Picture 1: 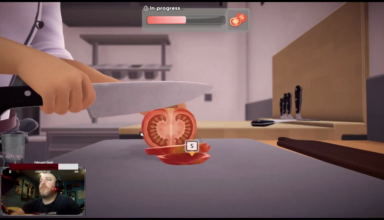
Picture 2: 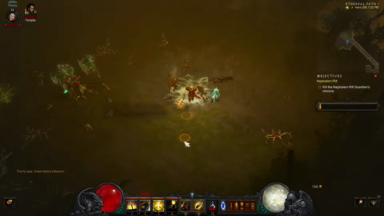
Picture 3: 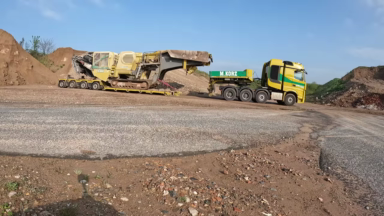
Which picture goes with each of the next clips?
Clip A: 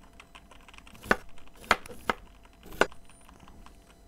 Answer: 1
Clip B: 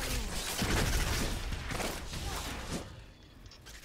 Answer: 2